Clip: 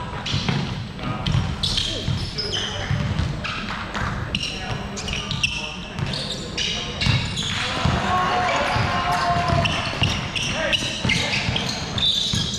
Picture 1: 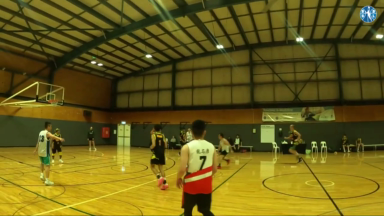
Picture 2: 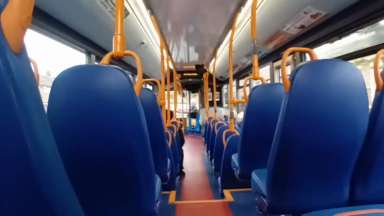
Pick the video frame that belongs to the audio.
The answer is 1